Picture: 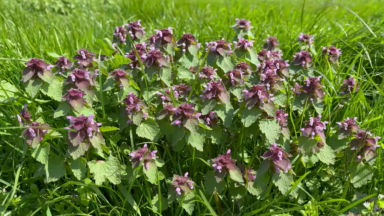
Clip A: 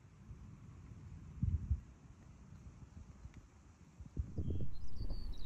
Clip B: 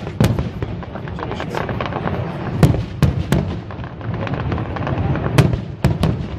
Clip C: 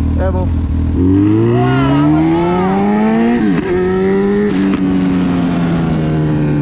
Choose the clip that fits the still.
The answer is A